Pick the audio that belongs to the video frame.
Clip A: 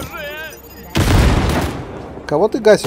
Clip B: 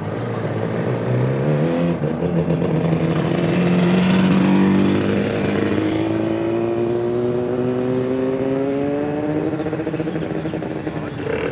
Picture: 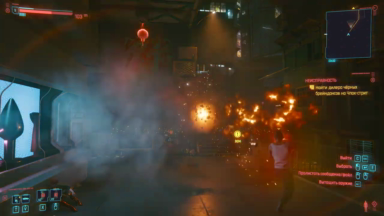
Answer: A